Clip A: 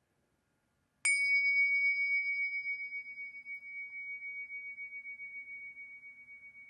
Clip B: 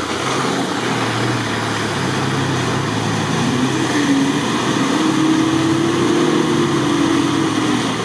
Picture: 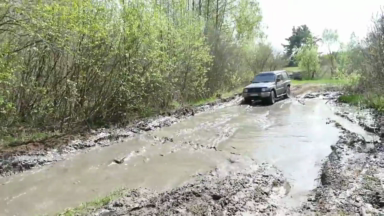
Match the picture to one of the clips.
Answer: B